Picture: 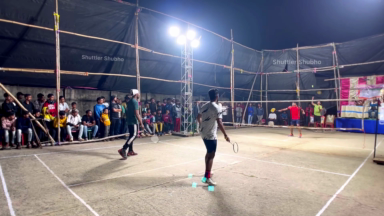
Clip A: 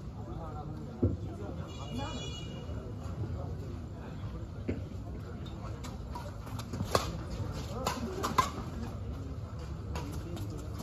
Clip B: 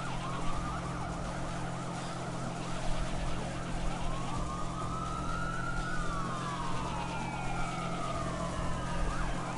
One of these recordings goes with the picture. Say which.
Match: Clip A